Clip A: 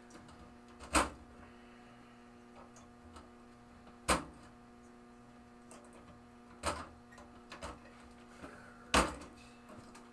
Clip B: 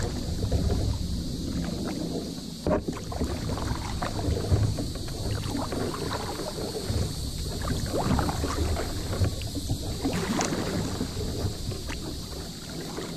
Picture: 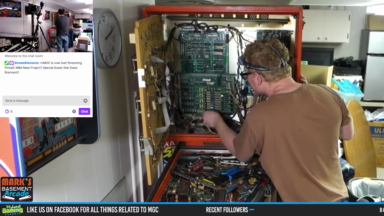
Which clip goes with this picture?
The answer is A